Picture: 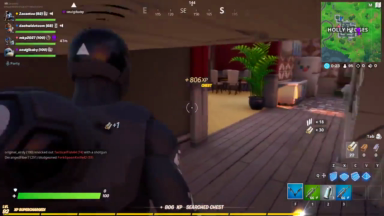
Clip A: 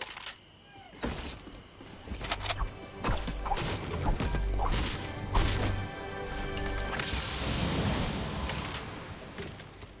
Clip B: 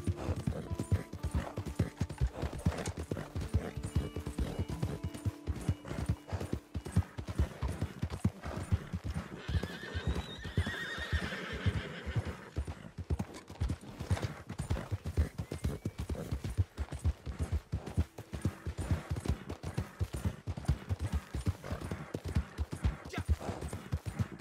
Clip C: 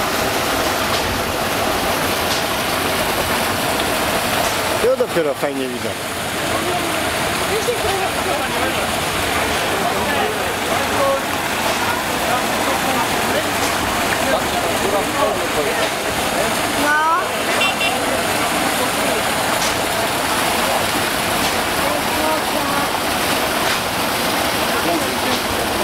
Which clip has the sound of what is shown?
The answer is A